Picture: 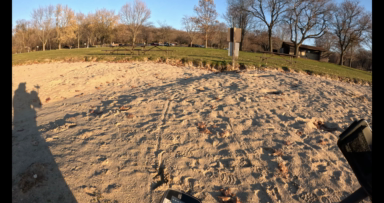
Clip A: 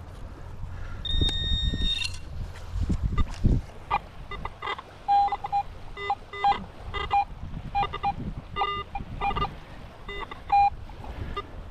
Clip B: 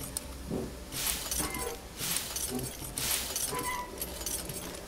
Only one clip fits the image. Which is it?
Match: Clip A